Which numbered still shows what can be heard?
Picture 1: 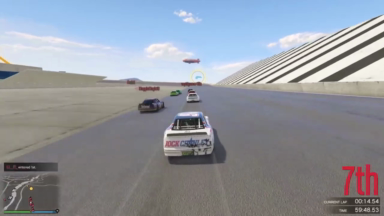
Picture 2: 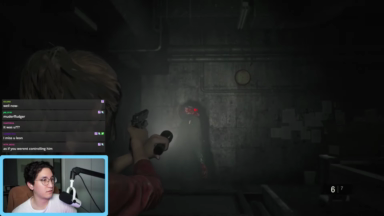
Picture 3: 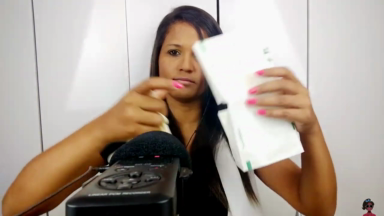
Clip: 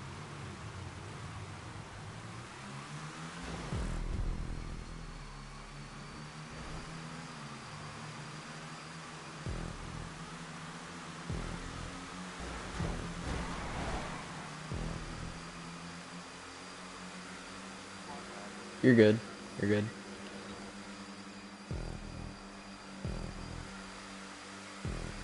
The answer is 1